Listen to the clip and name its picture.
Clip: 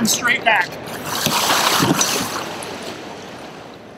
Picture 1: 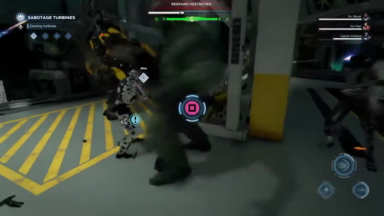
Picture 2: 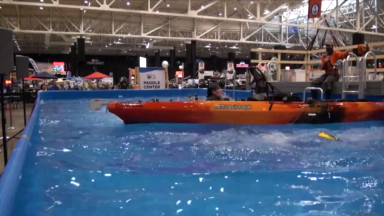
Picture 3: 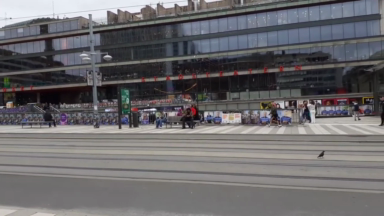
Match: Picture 2